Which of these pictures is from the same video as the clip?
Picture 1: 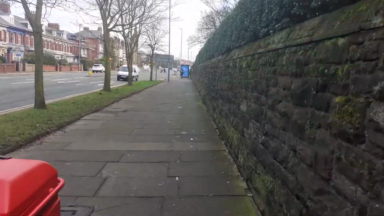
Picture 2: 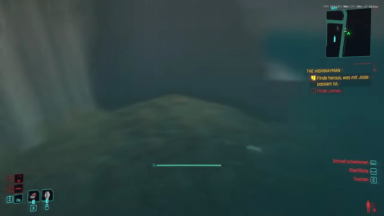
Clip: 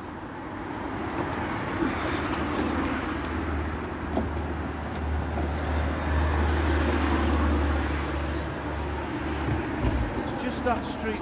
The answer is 1